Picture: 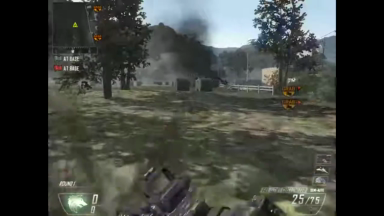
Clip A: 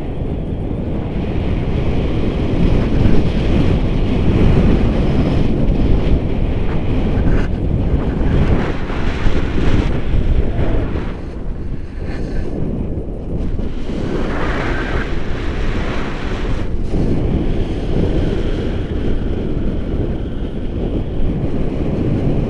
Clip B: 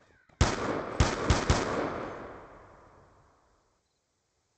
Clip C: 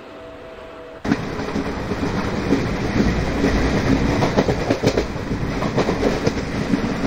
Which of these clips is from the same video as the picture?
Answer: B